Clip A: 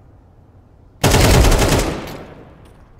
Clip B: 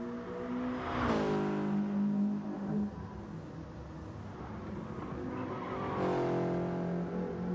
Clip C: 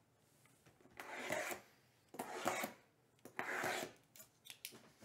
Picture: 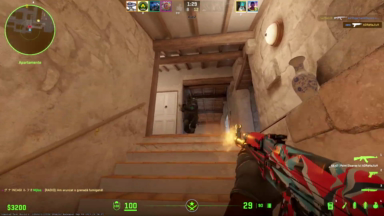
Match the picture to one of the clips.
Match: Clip A